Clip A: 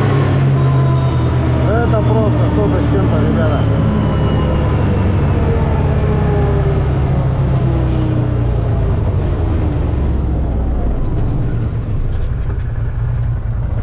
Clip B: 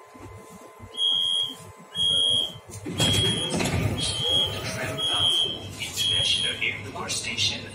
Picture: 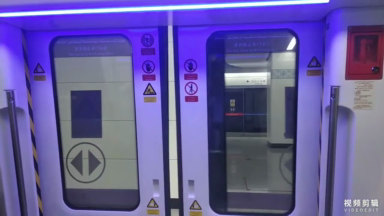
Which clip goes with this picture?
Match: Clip B